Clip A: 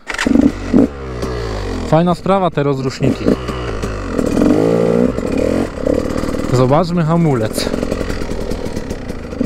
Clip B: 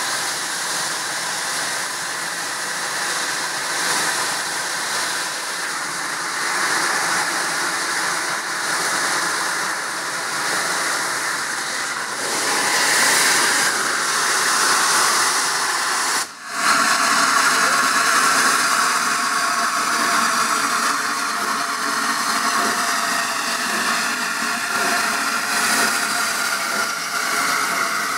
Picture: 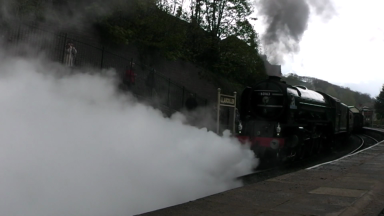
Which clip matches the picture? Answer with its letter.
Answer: B